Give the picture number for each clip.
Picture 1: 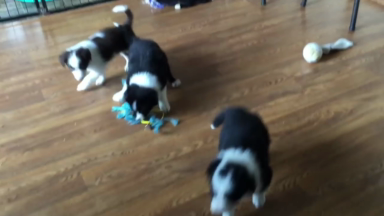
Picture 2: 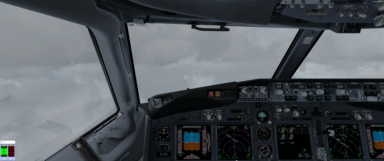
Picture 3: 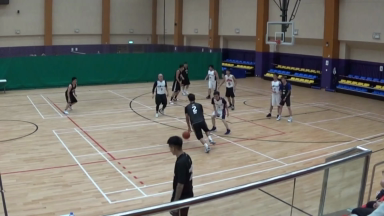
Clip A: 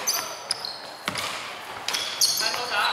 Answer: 3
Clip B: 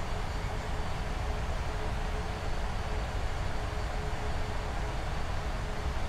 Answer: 2